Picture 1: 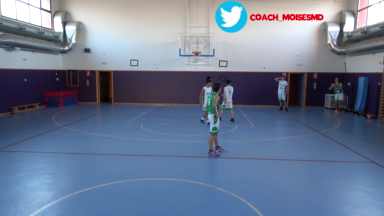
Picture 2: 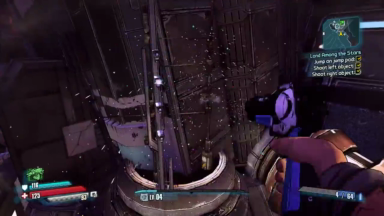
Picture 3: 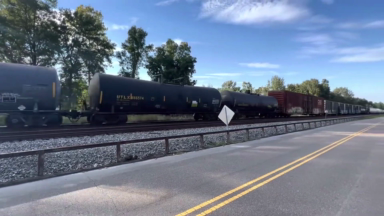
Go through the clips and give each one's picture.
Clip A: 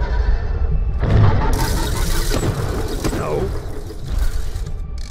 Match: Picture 2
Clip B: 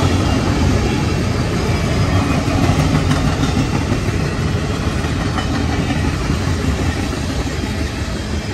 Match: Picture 3